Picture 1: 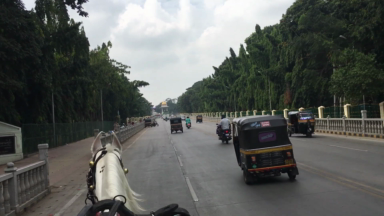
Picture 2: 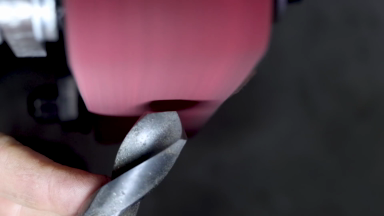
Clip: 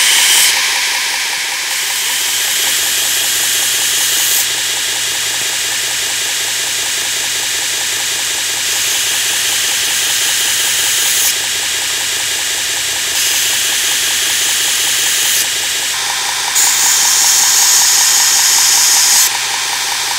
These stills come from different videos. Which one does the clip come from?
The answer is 2